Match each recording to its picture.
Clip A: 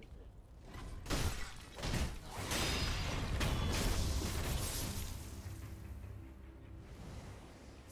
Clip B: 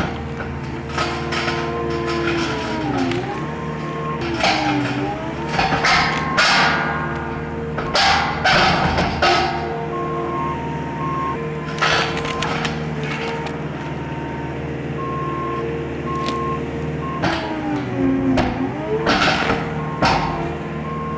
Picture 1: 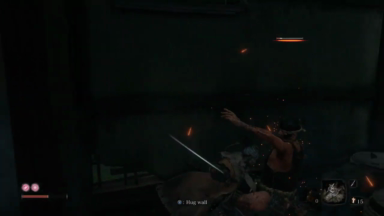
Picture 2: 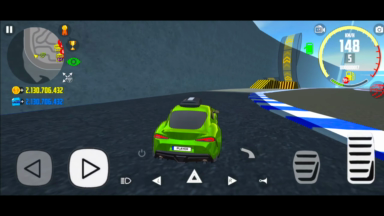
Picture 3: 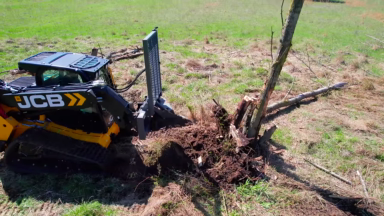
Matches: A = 1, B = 3